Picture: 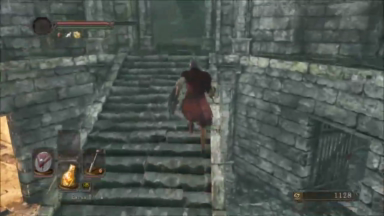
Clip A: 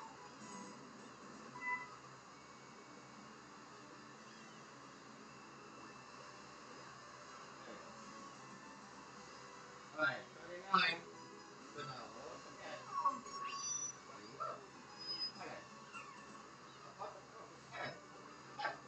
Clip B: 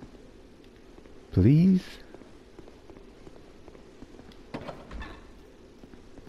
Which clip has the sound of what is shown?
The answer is B